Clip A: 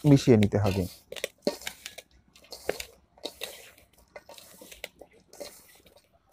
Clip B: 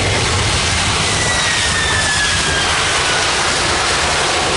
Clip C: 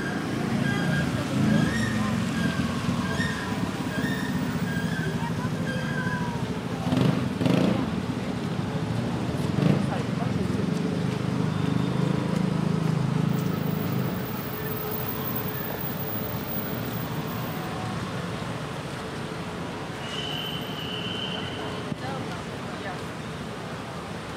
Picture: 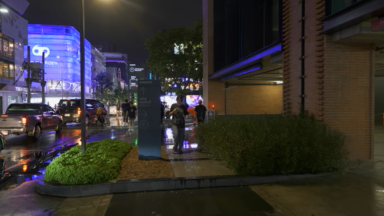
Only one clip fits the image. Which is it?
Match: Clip C